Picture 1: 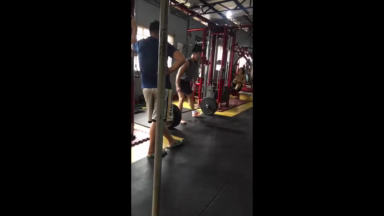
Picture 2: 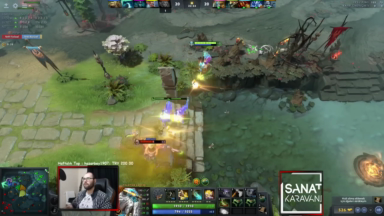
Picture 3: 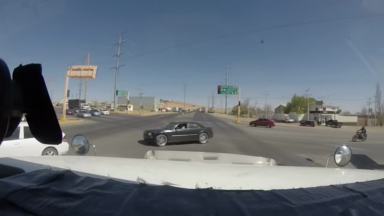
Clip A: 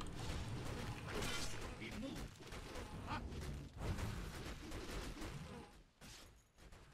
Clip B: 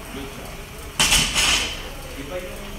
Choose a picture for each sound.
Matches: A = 2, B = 1